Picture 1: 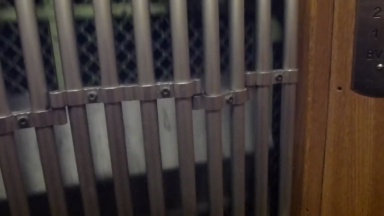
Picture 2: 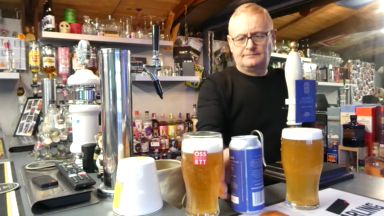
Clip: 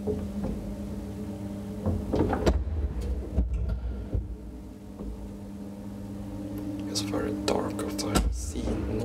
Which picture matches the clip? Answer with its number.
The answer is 1